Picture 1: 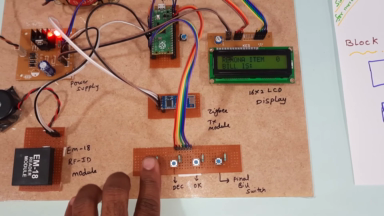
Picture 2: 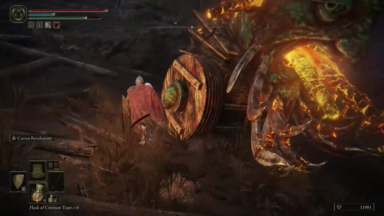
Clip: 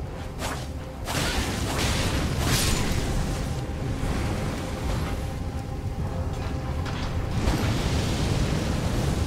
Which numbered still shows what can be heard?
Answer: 2